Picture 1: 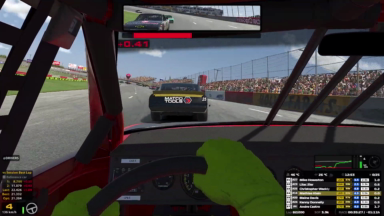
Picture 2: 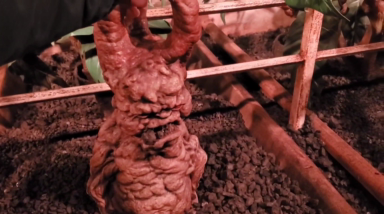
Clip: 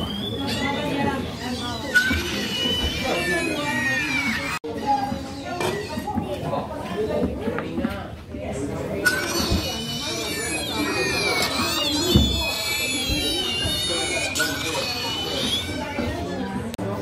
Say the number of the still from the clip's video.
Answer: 2